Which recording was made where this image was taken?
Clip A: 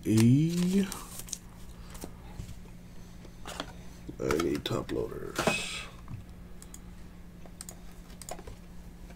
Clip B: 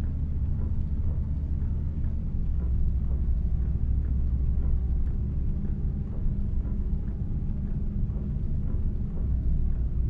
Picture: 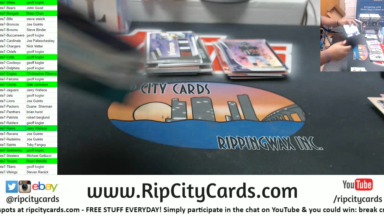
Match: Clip A